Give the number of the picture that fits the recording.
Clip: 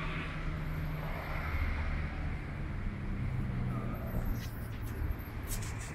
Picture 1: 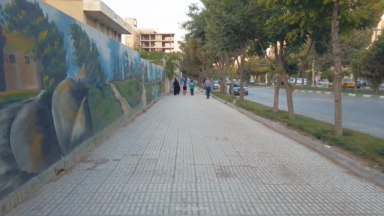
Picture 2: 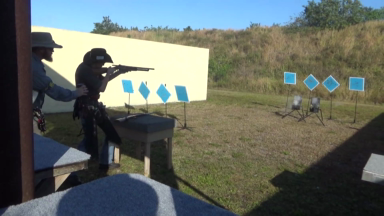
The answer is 1